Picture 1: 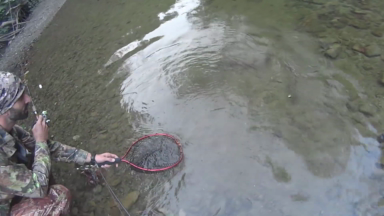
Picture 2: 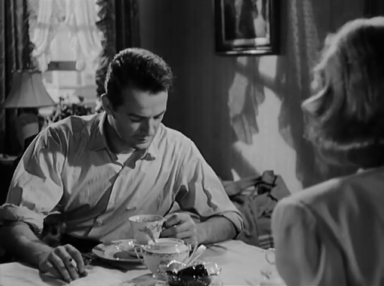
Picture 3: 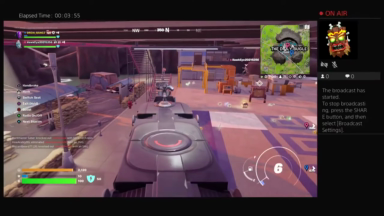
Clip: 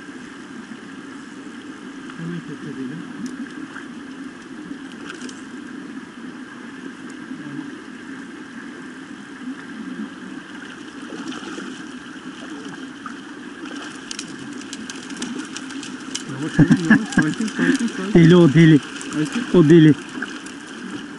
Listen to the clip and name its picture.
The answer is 1